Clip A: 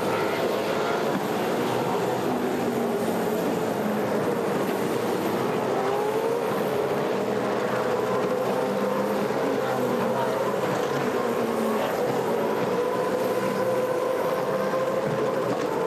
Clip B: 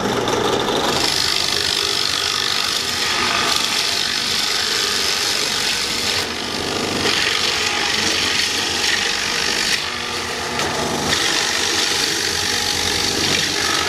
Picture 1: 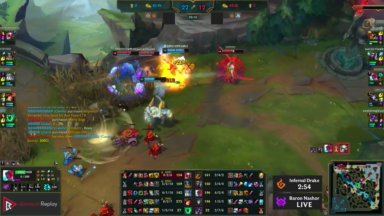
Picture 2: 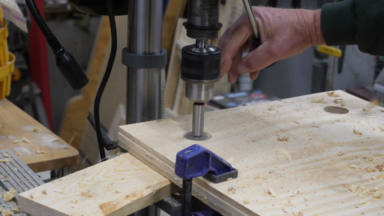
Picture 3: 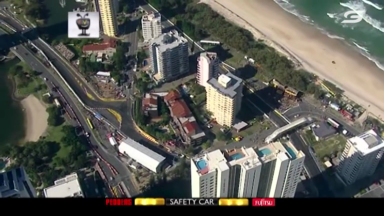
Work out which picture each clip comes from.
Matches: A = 3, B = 2